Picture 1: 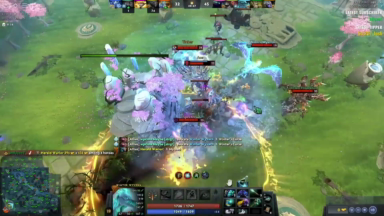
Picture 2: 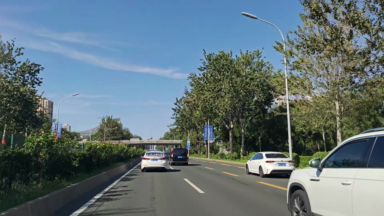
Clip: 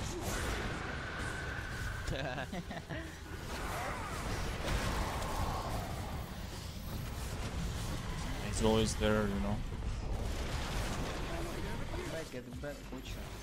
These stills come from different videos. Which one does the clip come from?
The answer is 1